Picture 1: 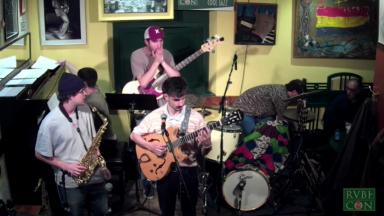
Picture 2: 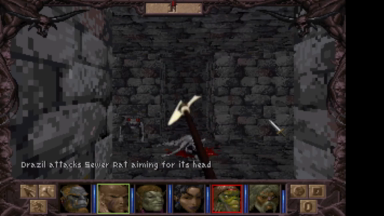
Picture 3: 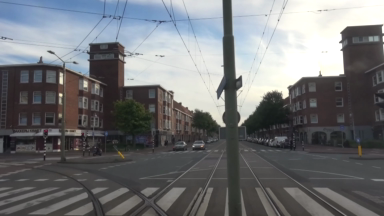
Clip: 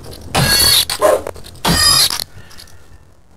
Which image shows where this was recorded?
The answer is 2